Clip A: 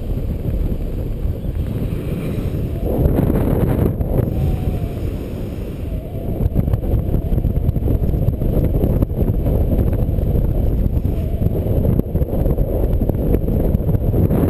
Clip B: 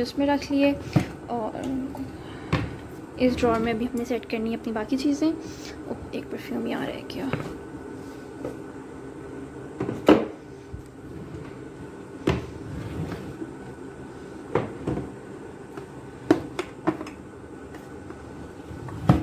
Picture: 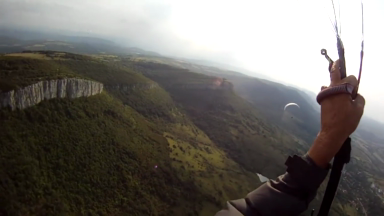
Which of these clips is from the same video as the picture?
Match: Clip A